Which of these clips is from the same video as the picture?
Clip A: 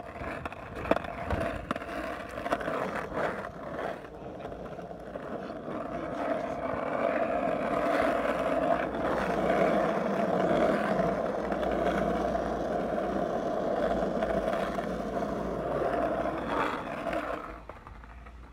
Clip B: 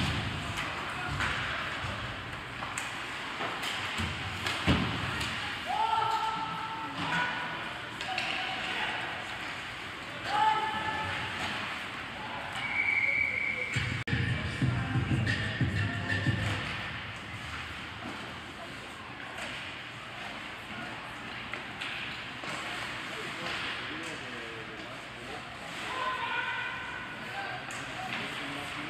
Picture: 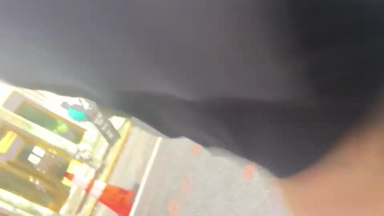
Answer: A